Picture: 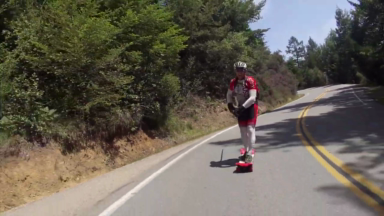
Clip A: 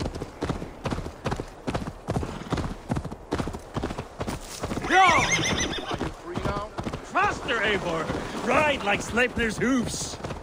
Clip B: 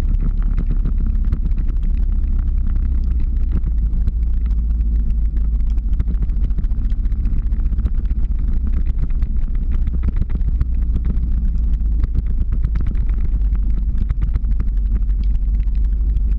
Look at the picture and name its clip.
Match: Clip B